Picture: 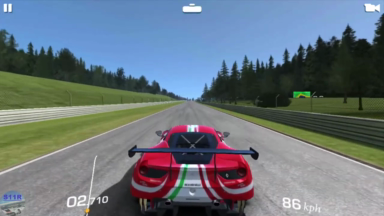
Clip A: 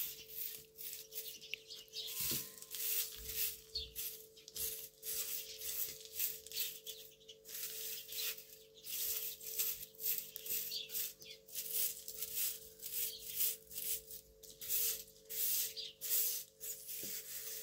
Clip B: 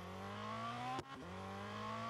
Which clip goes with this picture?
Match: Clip B